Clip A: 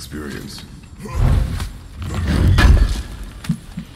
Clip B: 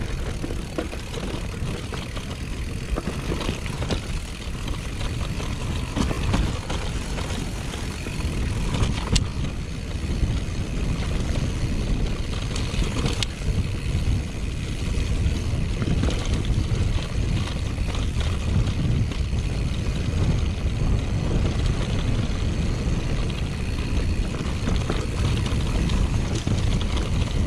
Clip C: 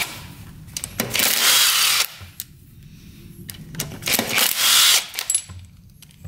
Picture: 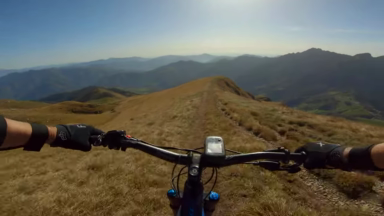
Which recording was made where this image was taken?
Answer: B